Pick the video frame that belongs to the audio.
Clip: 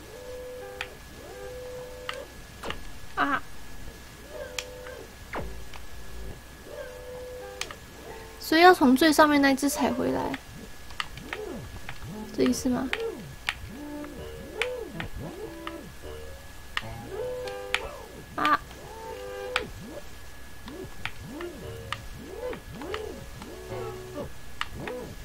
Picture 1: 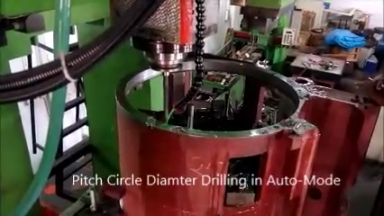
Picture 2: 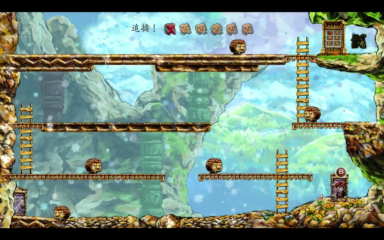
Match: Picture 2